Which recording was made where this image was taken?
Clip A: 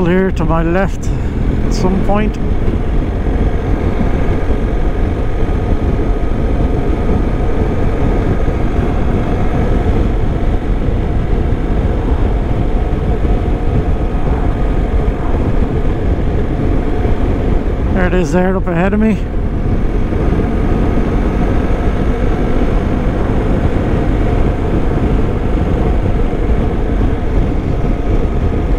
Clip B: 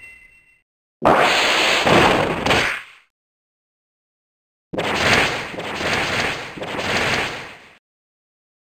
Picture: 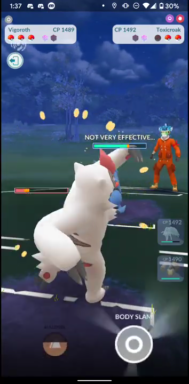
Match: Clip B